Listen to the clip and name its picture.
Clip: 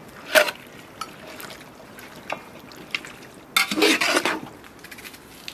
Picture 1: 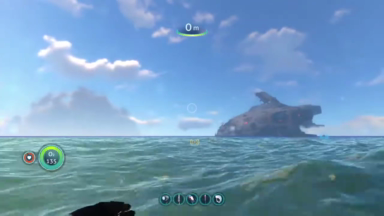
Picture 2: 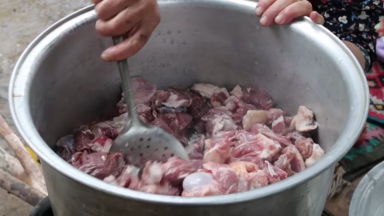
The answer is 2